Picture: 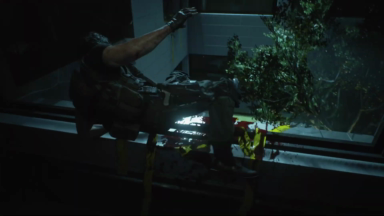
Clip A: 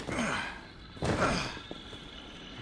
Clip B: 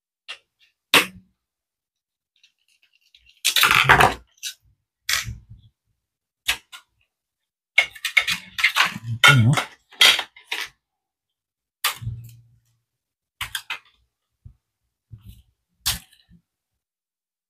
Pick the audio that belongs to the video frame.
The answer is A